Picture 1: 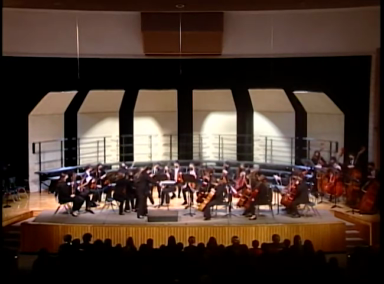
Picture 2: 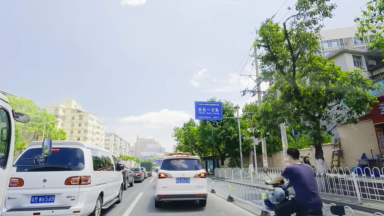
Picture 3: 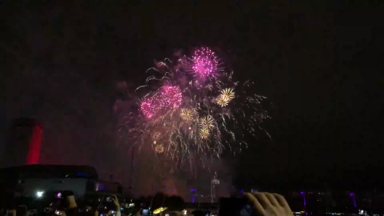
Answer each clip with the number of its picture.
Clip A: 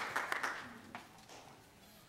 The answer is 1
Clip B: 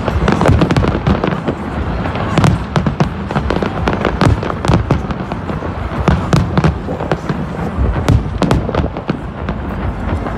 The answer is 3